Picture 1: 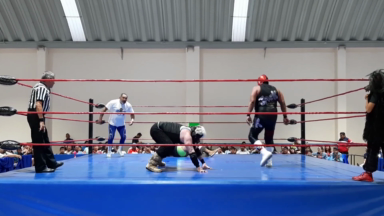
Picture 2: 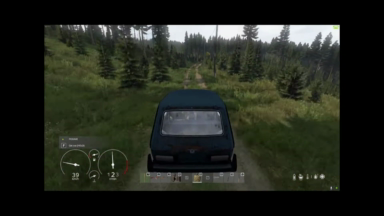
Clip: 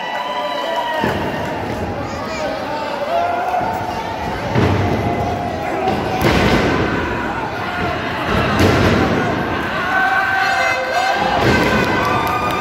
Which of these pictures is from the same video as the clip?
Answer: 1